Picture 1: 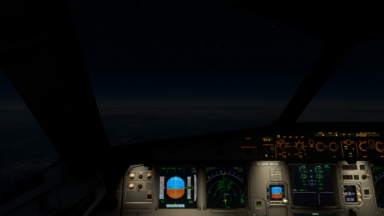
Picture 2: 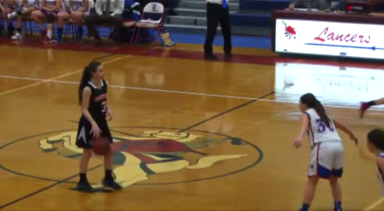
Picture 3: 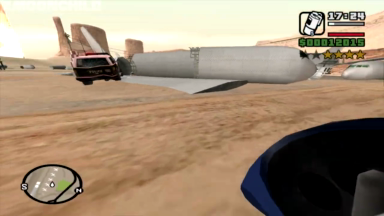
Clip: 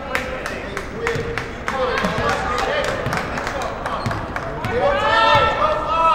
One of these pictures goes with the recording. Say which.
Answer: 2